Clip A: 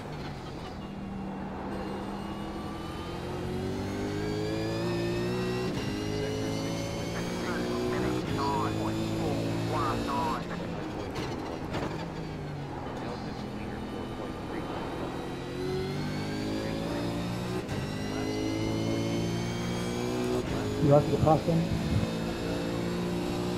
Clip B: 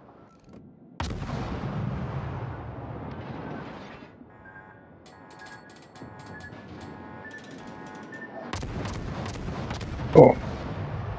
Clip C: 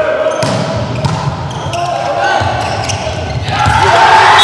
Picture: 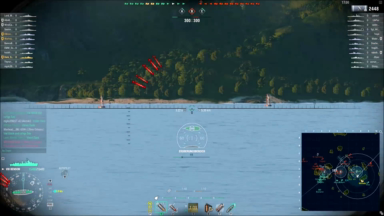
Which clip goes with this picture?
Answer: B